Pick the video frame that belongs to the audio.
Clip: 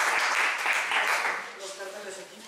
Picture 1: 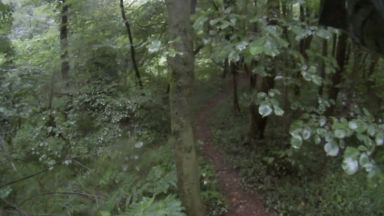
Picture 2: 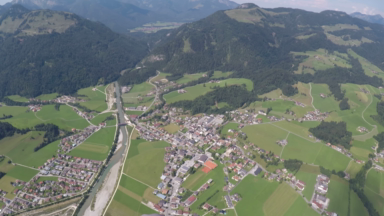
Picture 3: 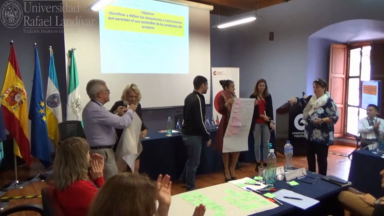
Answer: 3